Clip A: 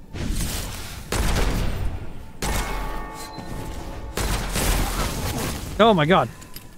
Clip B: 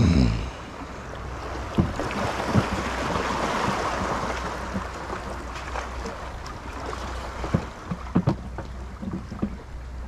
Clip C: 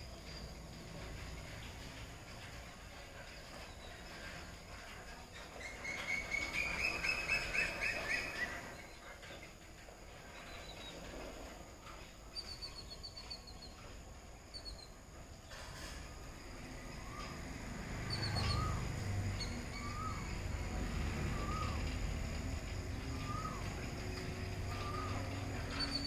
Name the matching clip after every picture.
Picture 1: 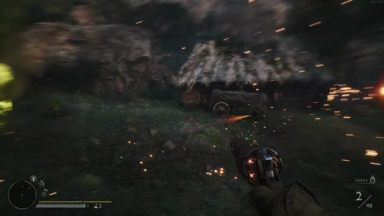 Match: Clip A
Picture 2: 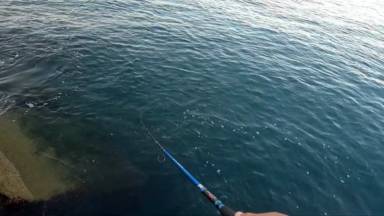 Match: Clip B